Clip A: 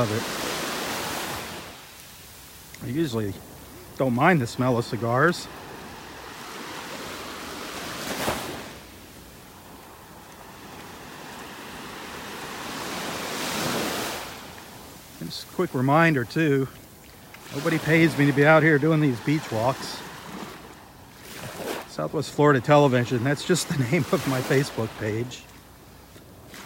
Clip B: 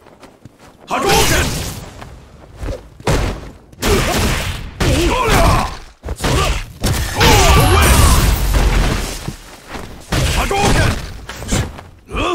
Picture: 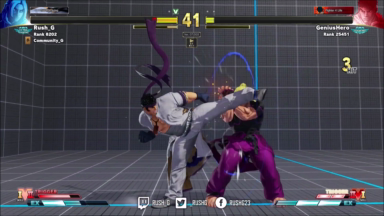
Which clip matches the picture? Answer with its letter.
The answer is B